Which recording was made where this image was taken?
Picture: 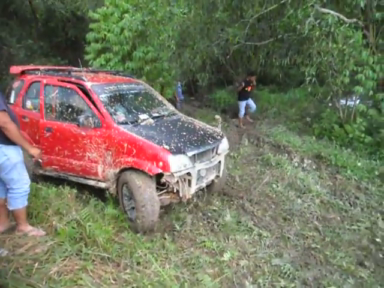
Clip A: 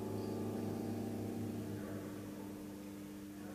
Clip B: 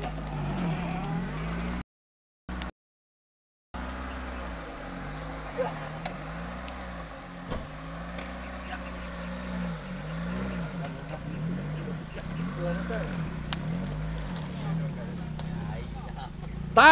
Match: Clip B